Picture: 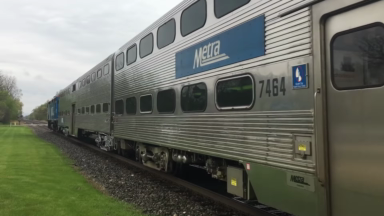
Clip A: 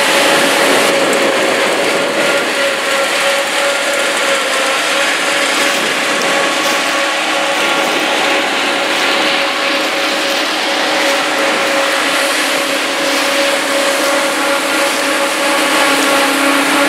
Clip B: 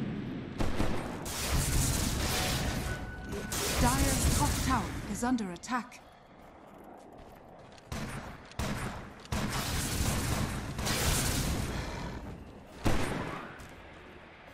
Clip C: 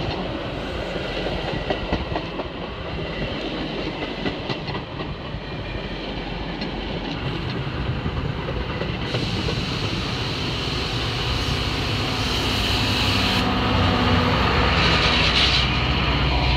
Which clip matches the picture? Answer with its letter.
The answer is C